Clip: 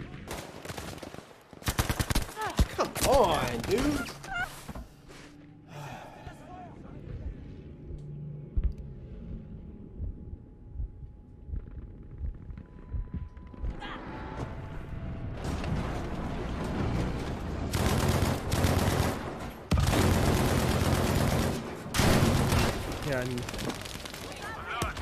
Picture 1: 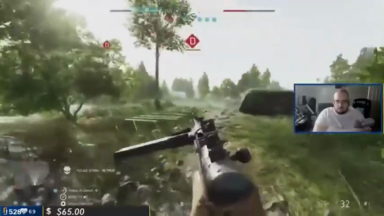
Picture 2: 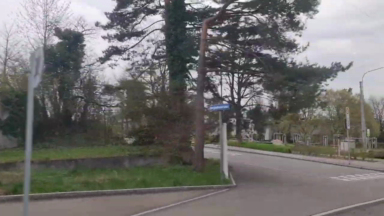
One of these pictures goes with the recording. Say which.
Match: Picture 1